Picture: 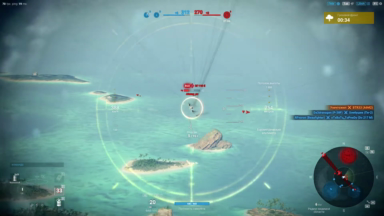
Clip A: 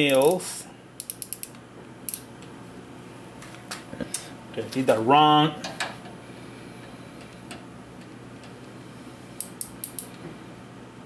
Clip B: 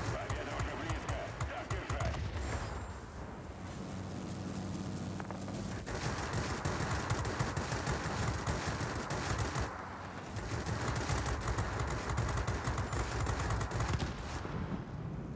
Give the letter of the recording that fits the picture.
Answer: B